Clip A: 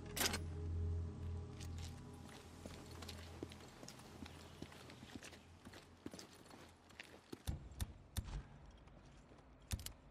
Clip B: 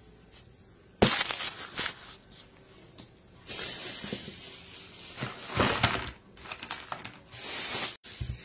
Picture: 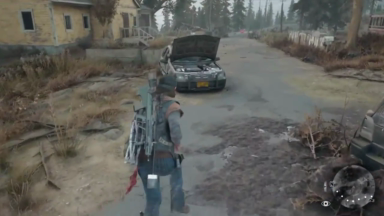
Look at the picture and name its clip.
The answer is A